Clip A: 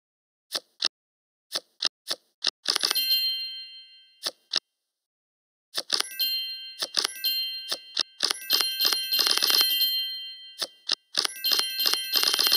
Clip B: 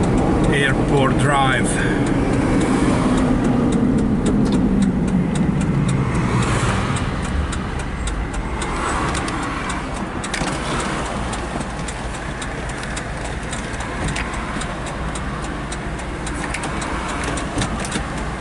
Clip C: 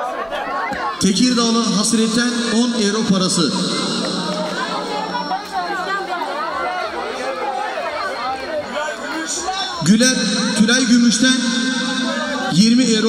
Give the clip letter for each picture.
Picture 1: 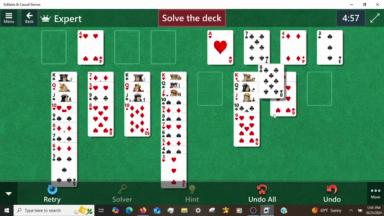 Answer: A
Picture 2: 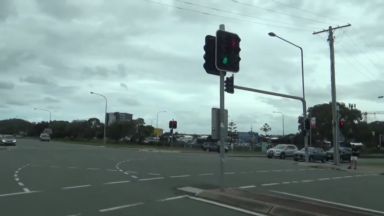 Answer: B